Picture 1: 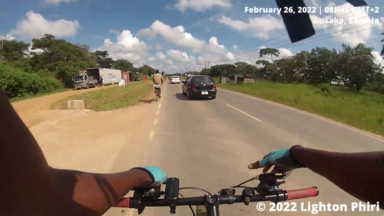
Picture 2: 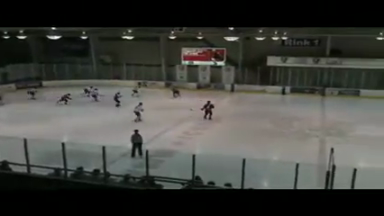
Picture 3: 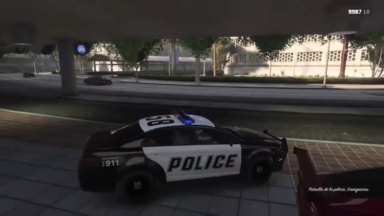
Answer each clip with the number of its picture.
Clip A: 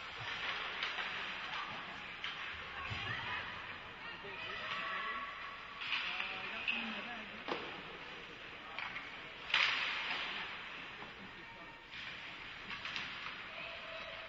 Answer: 2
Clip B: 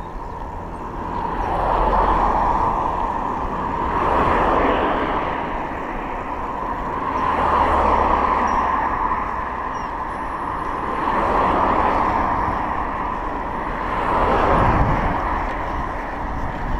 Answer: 1